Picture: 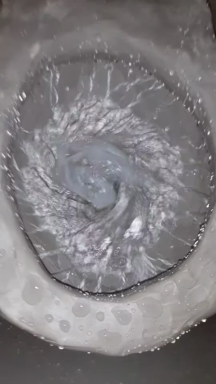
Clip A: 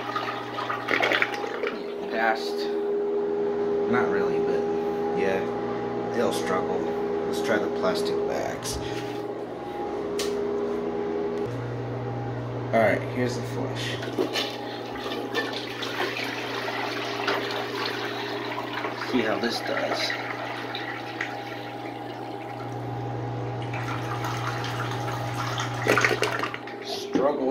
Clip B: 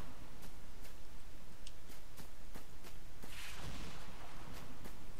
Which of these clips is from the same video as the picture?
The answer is A